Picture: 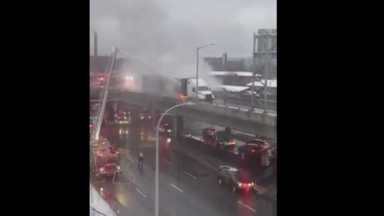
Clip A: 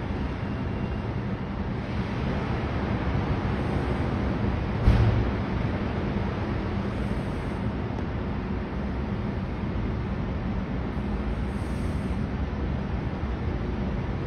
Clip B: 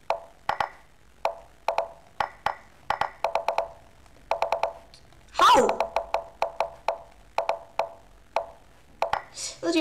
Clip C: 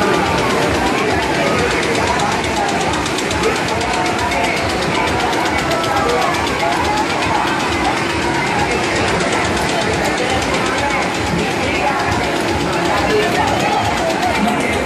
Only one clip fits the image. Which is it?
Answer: A